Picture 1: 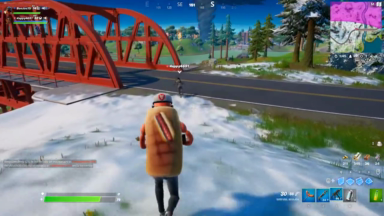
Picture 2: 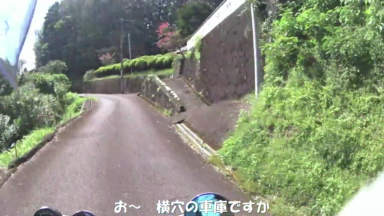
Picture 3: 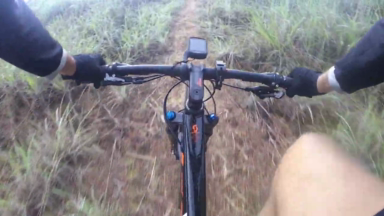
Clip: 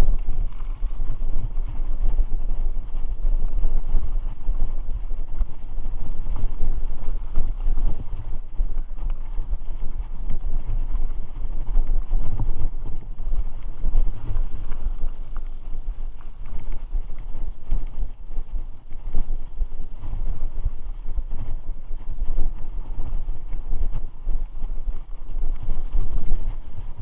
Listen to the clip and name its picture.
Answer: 3